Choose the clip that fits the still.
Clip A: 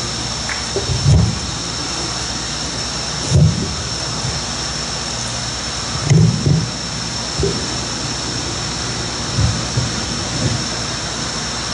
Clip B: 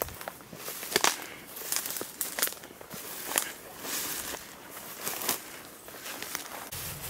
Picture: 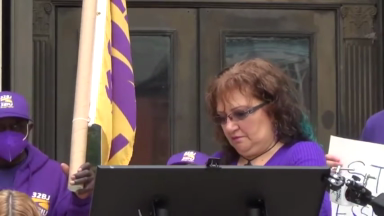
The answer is A